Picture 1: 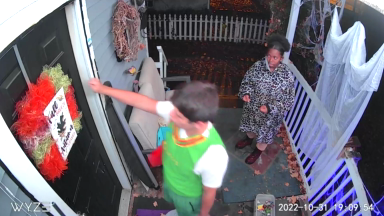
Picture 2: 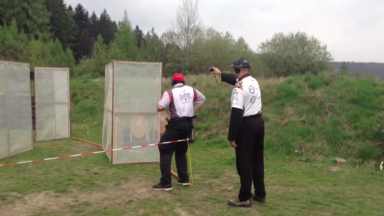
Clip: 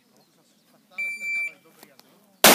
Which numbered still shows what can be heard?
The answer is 2